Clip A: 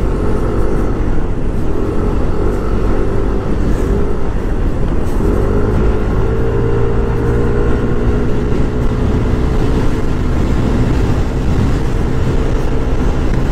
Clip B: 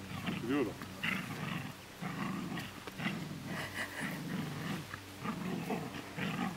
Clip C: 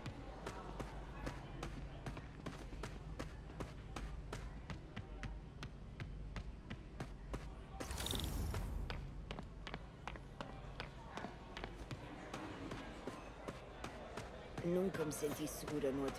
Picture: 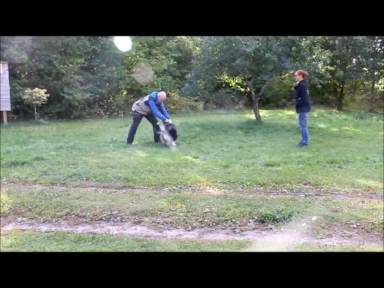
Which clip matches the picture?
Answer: B